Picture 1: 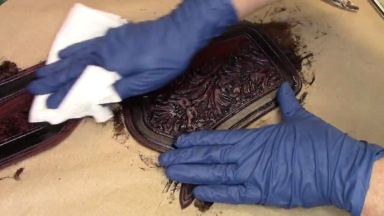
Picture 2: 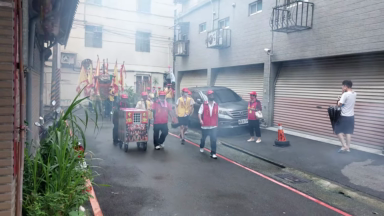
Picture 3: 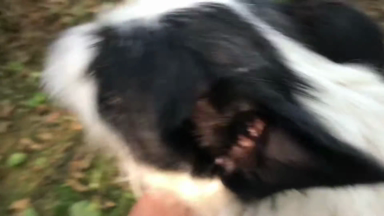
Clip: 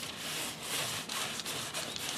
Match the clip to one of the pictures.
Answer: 1